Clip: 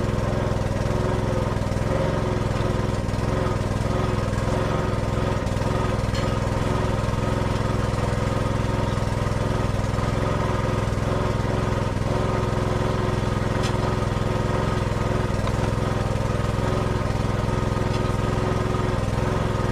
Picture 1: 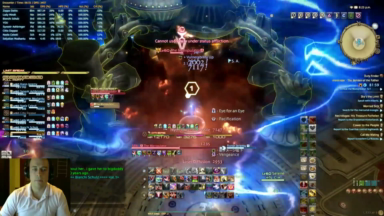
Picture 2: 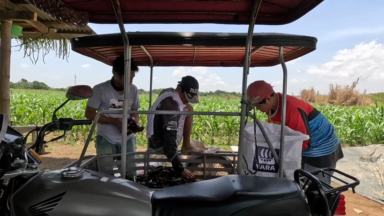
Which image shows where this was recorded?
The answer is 2